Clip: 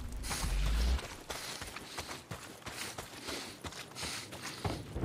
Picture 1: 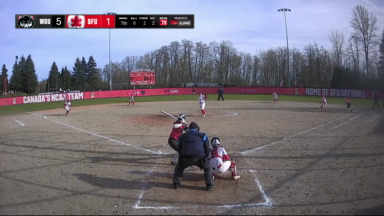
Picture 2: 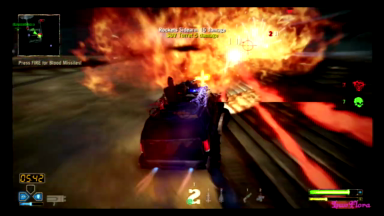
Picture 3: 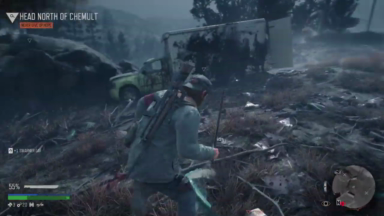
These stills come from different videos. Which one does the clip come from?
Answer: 3